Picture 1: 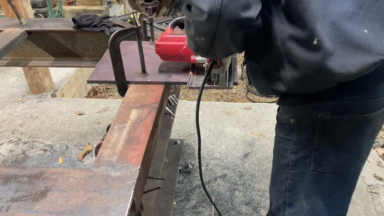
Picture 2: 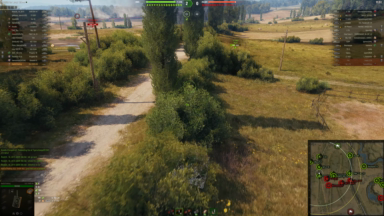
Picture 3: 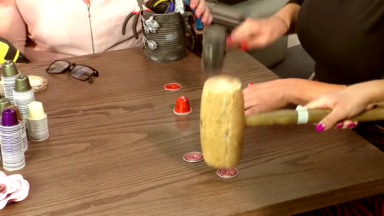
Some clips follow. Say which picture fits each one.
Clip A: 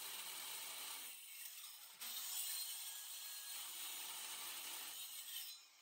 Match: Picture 1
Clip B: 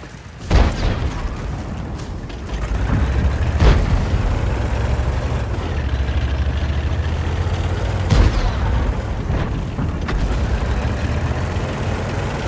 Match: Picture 2